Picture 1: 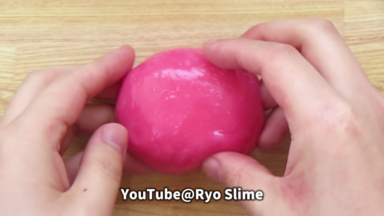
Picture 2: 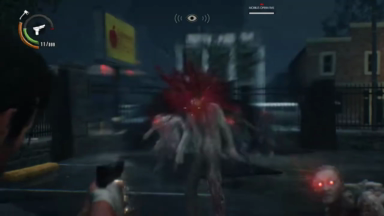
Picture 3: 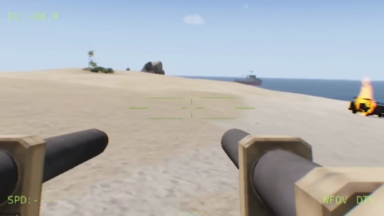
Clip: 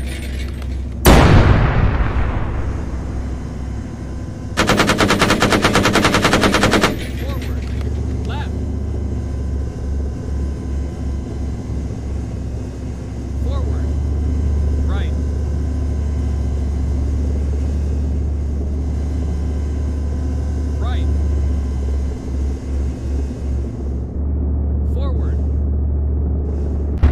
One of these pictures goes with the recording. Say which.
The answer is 3